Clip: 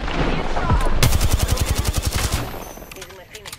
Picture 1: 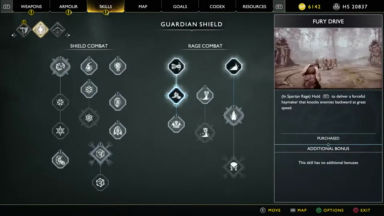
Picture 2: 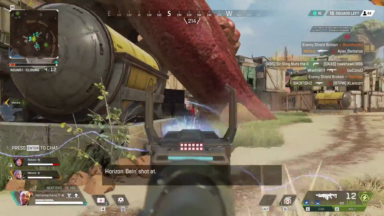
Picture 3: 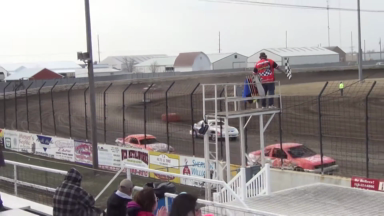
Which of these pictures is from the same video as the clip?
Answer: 2